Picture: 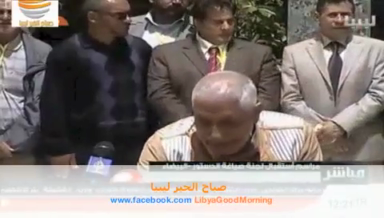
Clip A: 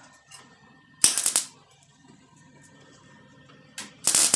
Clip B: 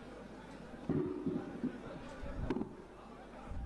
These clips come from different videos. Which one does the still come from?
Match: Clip B